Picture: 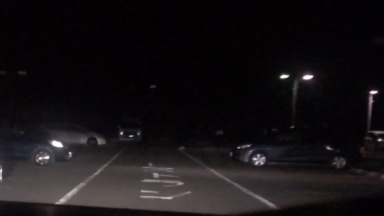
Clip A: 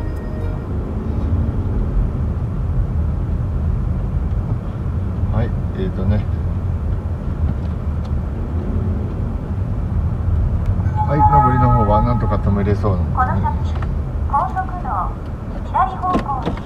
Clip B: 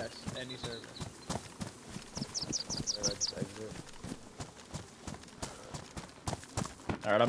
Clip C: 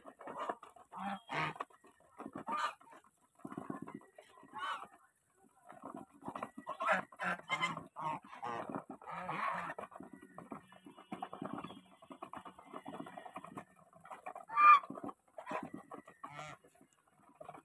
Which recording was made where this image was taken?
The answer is A